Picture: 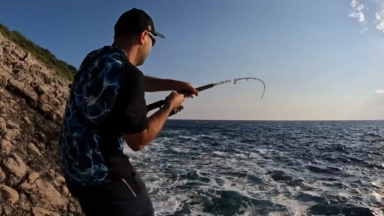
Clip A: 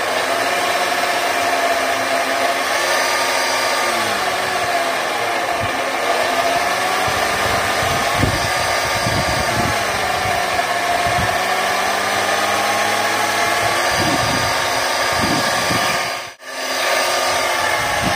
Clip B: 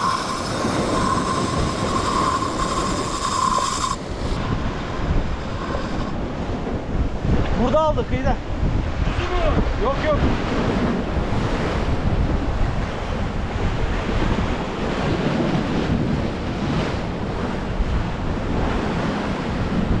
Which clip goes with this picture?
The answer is B